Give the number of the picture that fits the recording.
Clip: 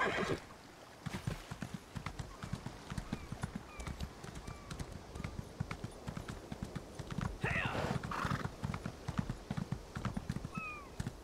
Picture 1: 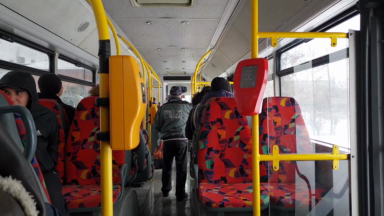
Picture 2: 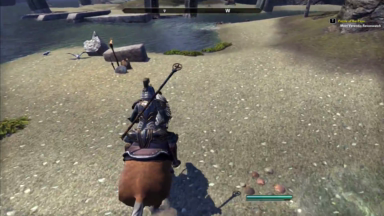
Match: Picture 2